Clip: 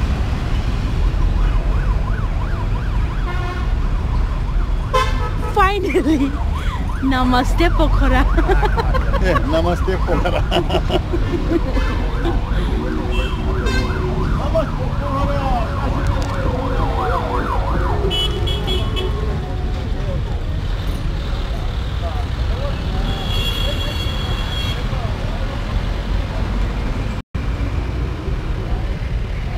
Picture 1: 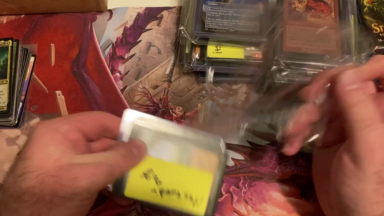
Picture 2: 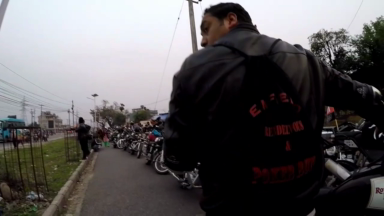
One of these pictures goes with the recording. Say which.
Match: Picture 2